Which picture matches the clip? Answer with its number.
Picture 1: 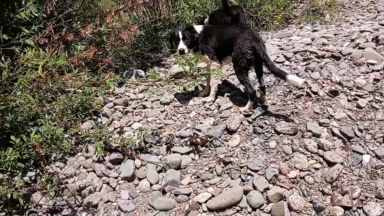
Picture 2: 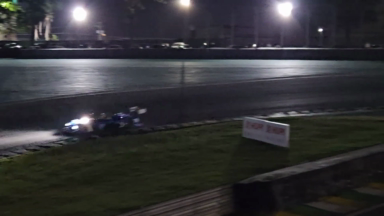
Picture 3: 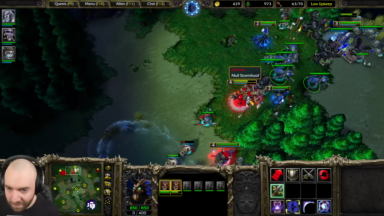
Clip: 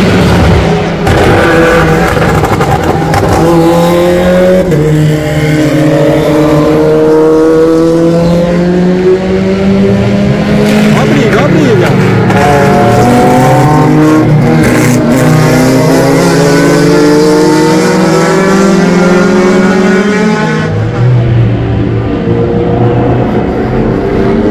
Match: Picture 2